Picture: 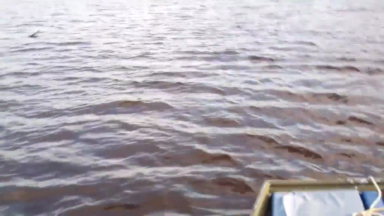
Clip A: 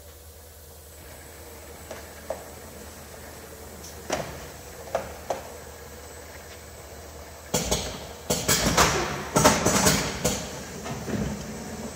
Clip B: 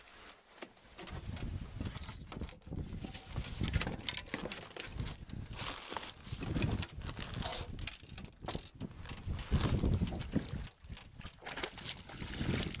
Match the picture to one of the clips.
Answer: B